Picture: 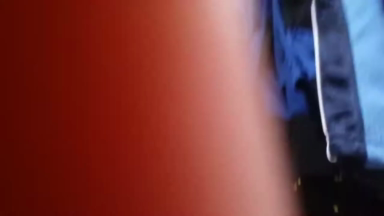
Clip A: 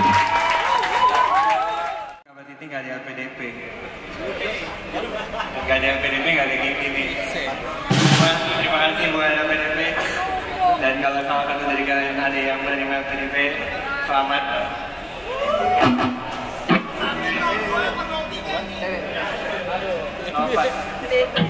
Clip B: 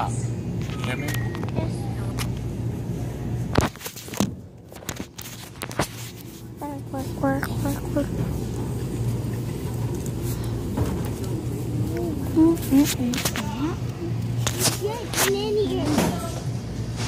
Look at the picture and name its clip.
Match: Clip B